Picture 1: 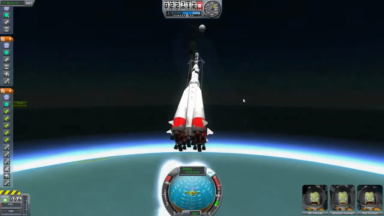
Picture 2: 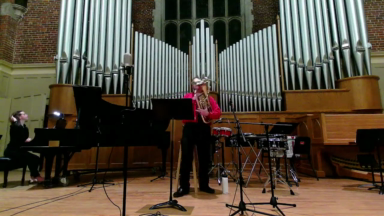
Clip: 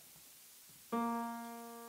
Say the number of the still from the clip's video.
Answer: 2